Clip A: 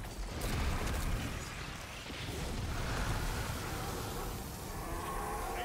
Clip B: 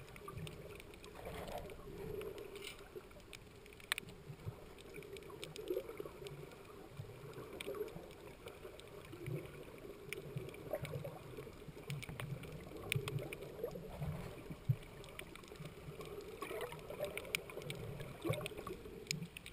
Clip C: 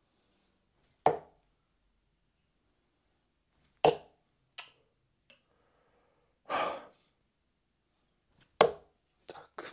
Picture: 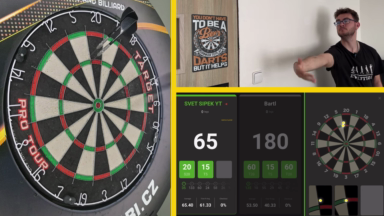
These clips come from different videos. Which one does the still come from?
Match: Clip C